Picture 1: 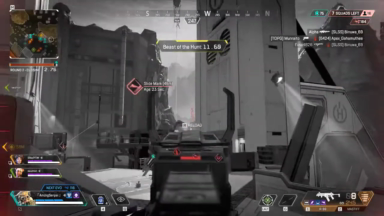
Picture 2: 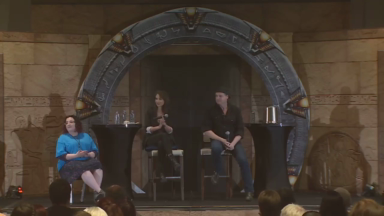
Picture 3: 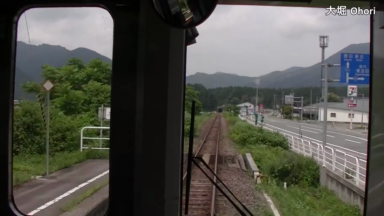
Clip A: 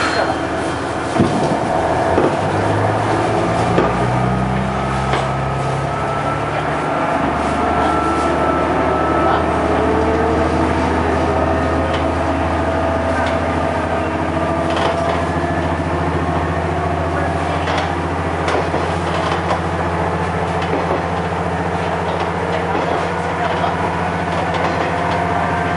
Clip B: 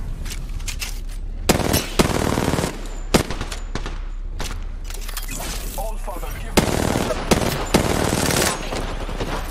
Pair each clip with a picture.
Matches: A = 3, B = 1